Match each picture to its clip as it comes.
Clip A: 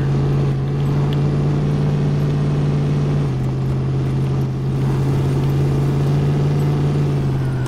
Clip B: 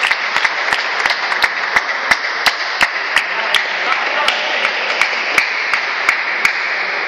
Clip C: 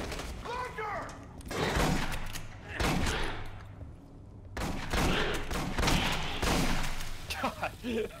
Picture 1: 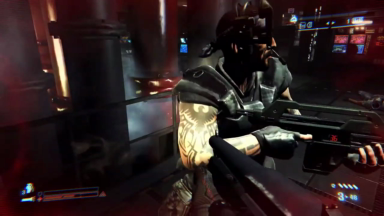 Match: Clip C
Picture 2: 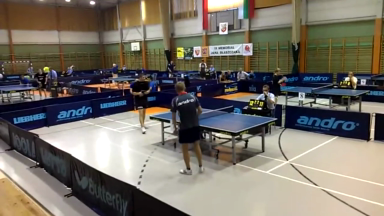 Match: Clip B